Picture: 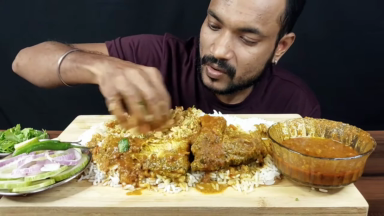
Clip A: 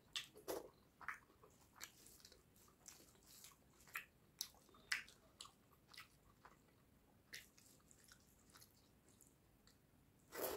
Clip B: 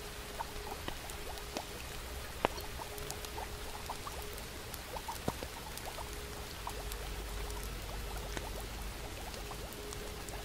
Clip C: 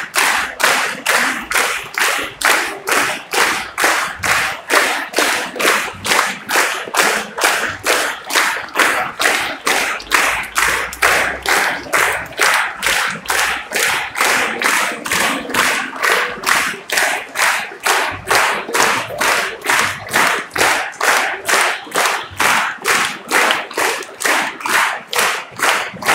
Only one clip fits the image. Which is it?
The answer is A